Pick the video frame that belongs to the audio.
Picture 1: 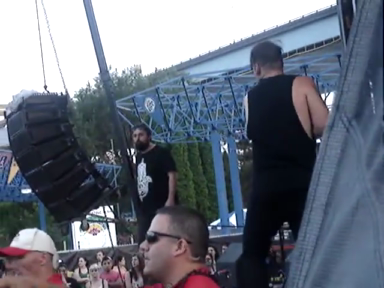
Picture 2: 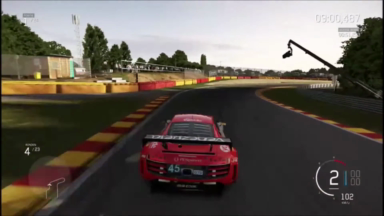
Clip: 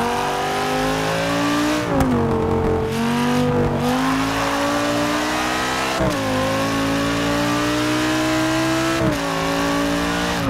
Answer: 2